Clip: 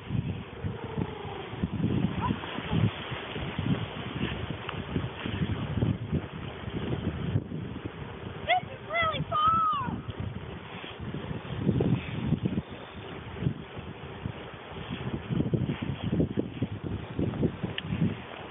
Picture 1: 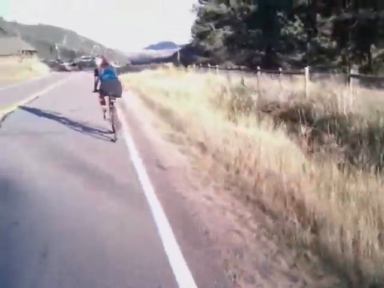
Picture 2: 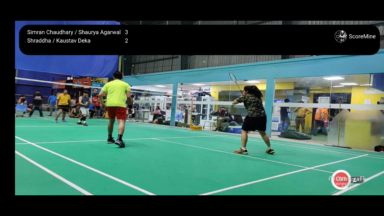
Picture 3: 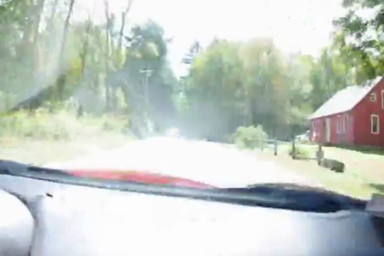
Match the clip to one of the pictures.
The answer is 1